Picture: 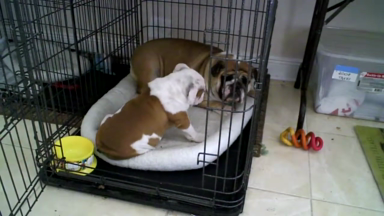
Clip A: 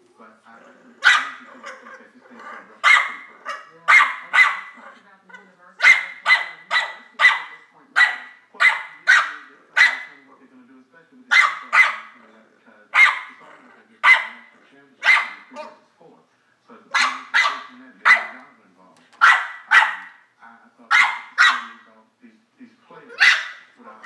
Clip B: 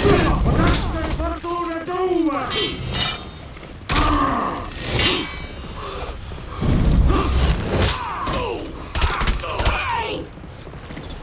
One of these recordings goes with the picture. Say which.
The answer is A